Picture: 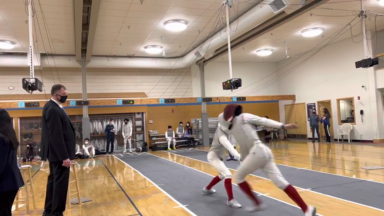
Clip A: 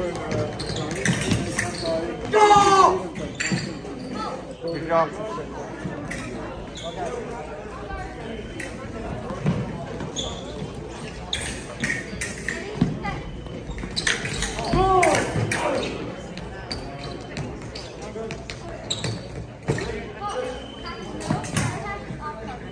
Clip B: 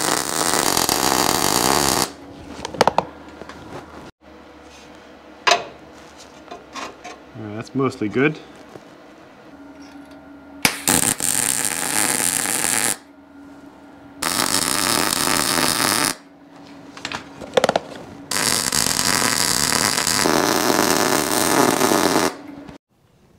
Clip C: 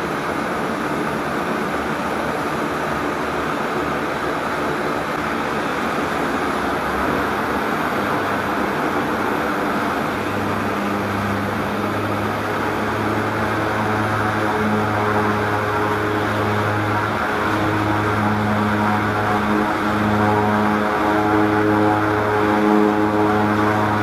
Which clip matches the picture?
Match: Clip A